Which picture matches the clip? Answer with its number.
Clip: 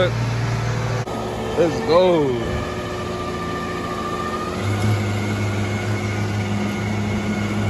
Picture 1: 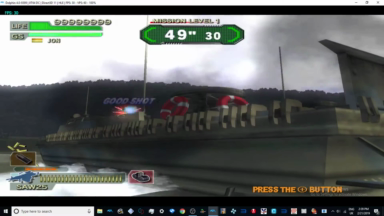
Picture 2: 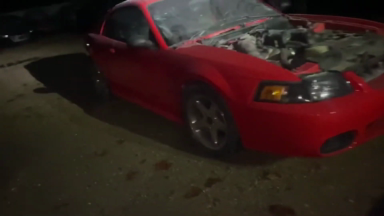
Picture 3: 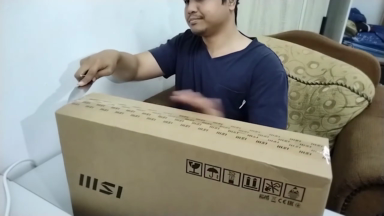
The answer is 2